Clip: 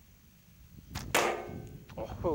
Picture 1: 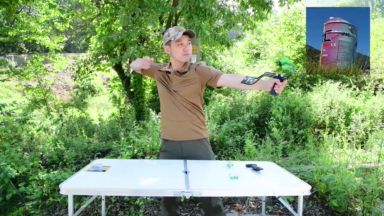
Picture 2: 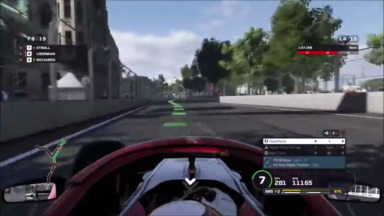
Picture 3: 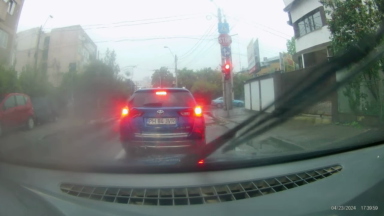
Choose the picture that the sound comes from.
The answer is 1